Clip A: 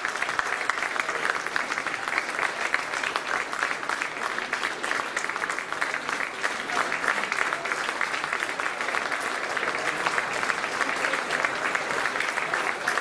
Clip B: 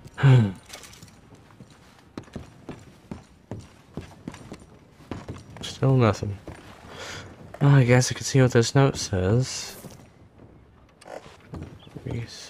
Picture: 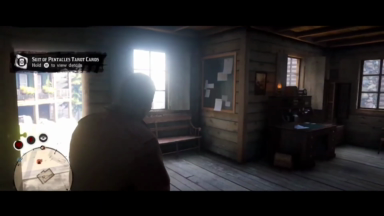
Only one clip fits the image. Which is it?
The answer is B